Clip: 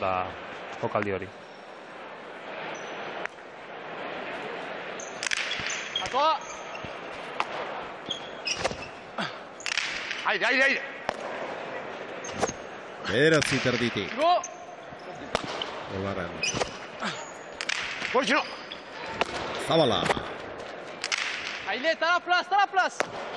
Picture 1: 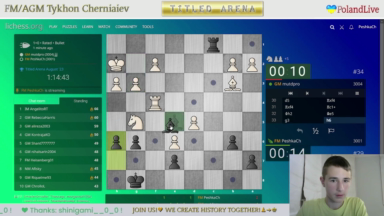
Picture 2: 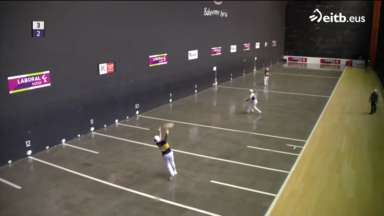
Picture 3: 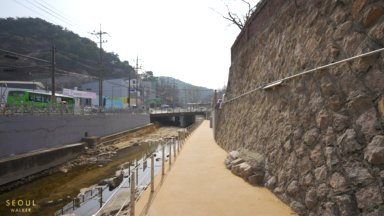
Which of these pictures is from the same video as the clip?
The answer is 2